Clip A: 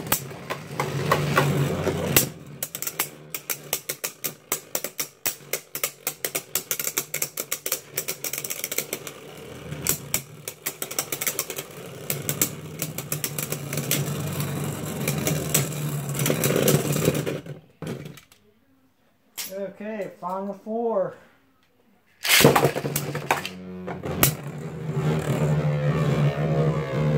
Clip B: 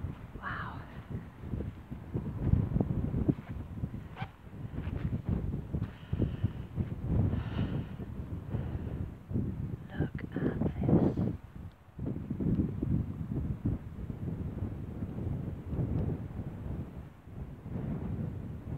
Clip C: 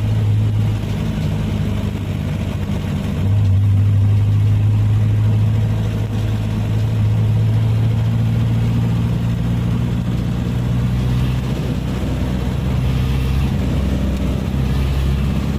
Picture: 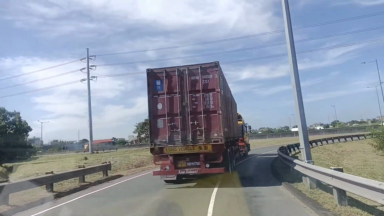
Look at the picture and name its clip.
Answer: C